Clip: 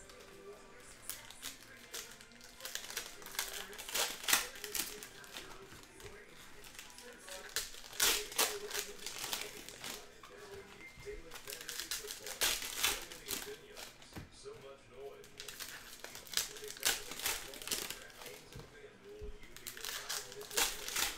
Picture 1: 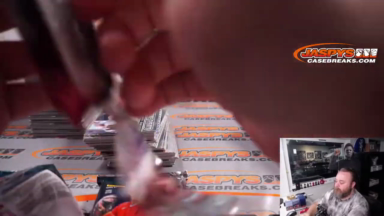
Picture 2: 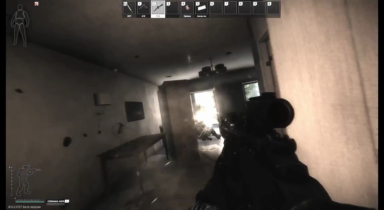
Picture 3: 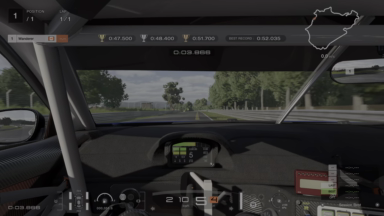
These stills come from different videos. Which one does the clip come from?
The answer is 1